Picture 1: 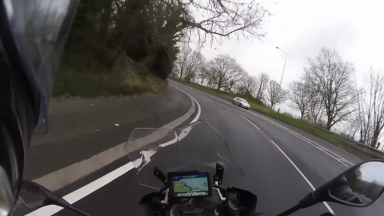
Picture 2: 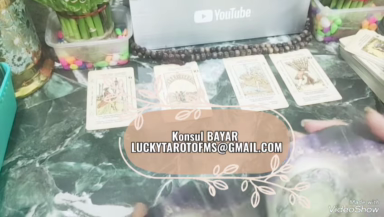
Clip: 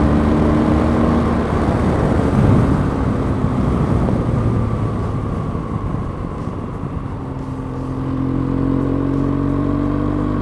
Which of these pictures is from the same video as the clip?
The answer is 1